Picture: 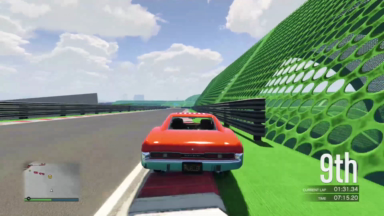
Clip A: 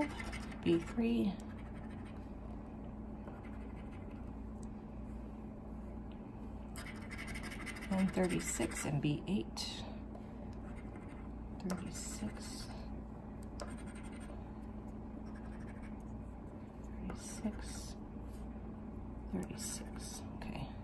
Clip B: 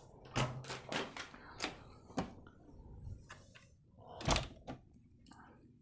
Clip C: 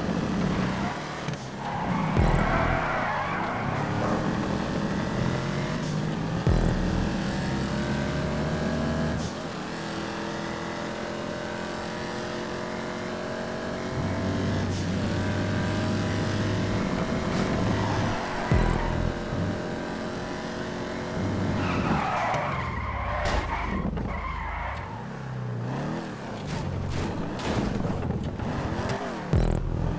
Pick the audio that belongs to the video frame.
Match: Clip C